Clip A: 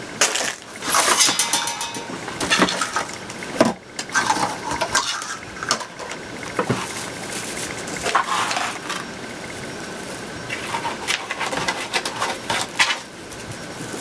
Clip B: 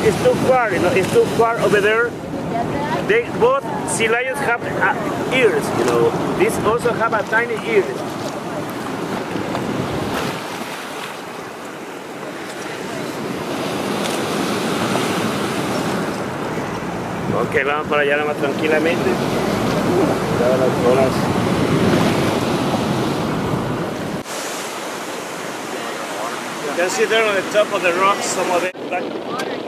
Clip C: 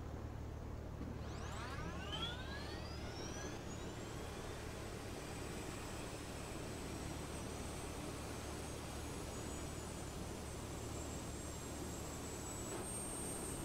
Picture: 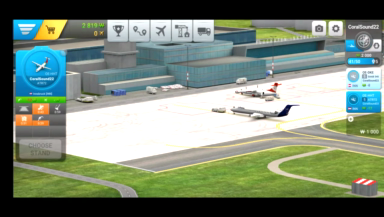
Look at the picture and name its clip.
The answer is C